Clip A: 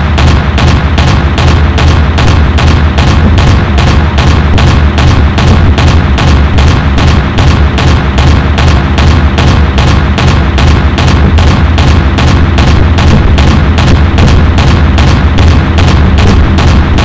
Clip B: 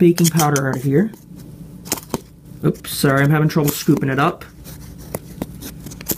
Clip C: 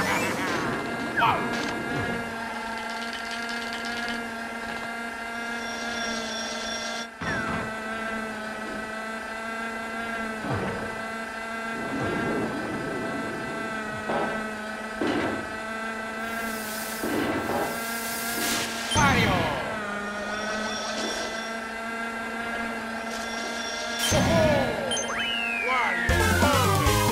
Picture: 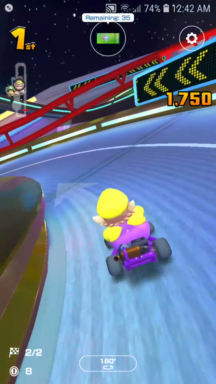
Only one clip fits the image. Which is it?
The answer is C